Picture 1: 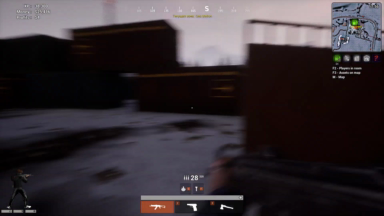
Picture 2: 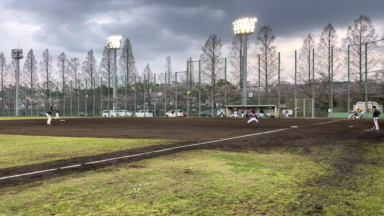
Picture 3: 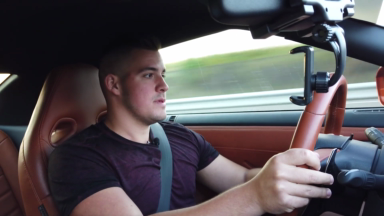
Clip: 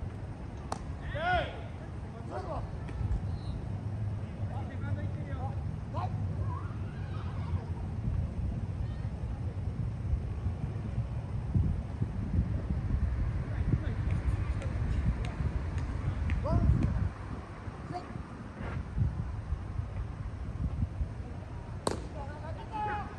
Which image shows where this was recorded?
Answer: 2